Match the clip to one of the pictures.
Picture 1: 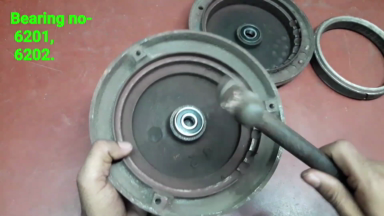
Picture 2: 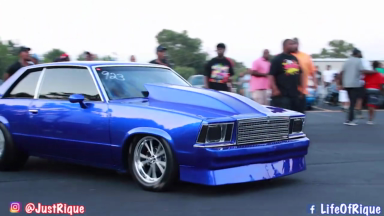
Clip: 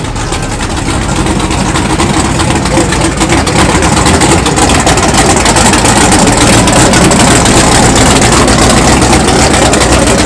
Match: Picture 2